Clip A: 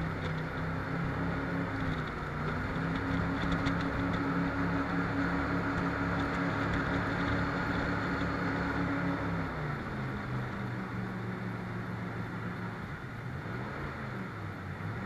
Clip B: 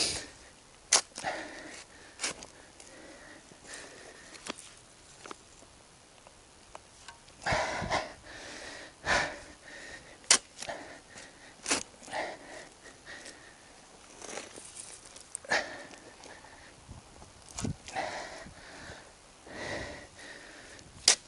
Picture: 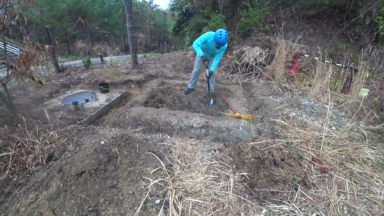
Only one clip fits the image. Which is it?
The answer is B